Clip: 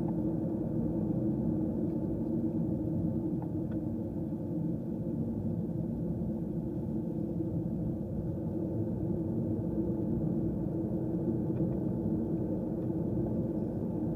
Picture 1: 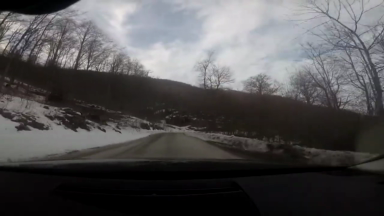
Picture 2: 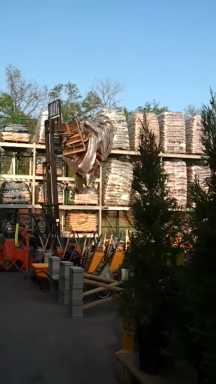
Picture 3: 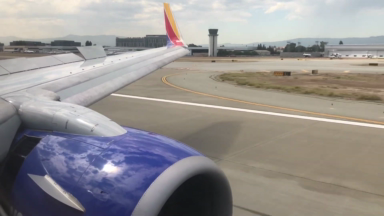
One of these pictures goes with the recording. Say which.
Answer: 1